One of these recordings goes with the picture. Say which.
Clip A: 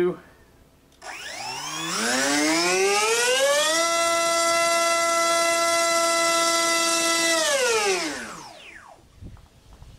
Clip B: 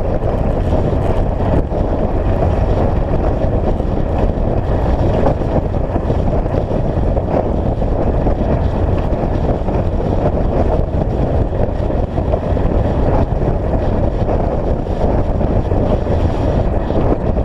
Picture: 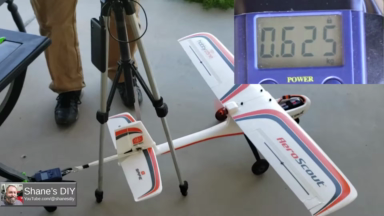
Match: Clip A